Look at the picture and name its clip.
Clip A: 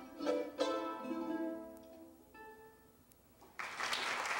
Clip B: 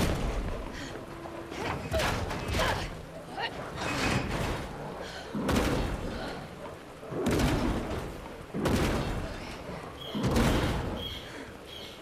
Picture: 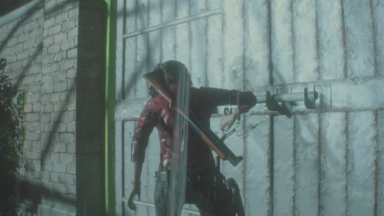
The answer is B